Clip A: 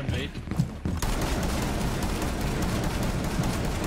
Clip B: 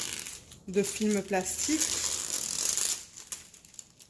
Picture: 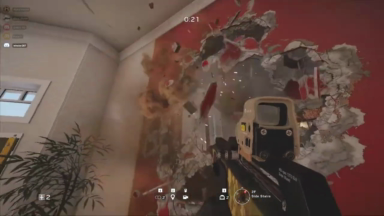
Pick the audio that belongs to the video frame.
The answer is A